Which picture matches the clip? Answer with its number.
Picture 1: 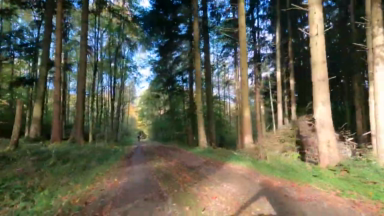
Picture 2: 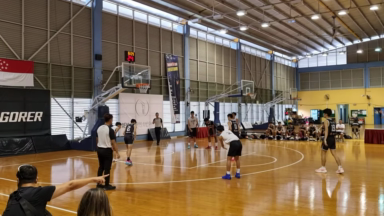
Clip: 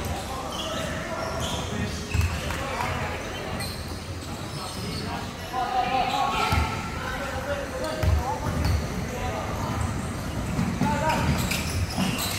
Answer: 2